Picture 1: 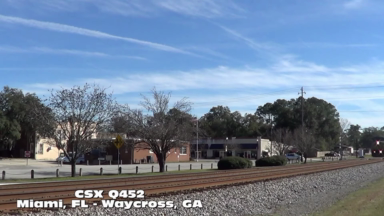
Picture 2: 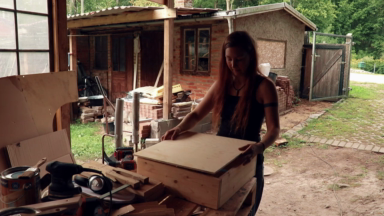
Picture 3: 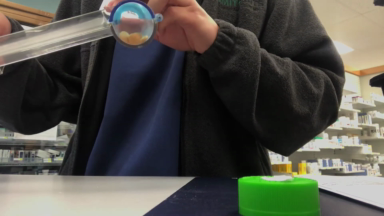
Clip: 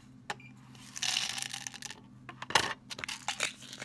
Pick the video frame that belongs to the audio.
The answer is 3